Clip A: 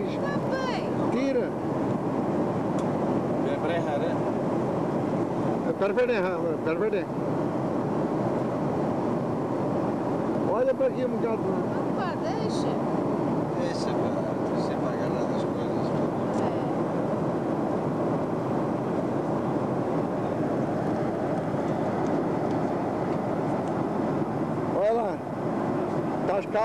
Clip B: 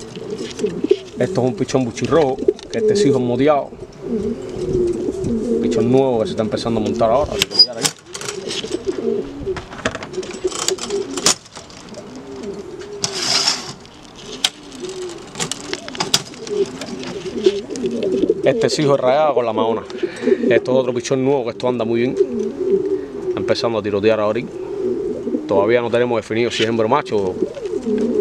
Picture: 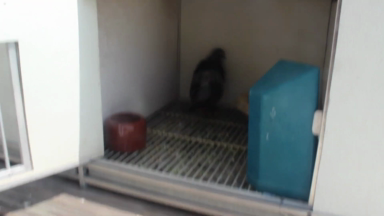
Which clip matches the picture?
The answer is B